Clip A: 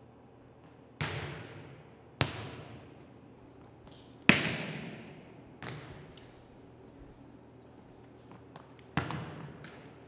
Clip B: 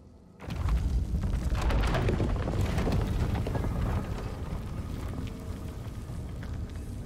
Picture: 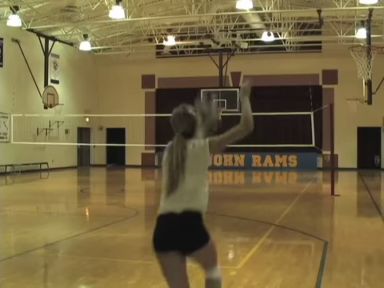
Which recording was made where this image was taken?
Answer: A